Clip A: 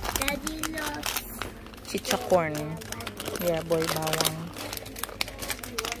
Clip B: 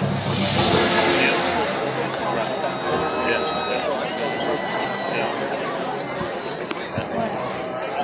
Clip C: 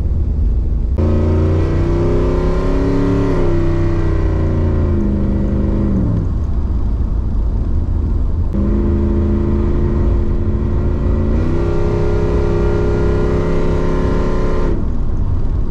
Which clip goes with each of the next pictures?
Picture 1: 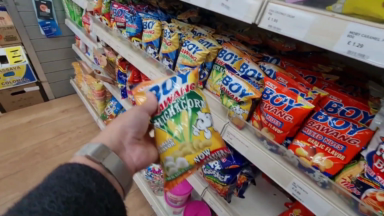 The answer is A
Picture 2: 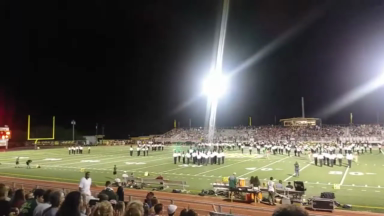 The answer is B